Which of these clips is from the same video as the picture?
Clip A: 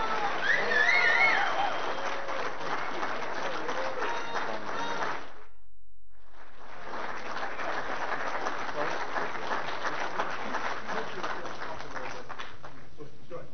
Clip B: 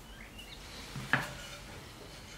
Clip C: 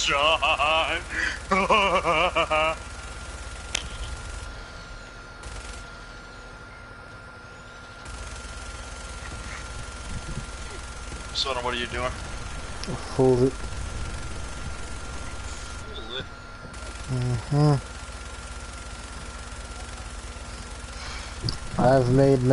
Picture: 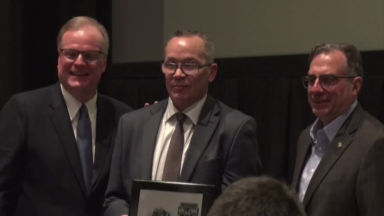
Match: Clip A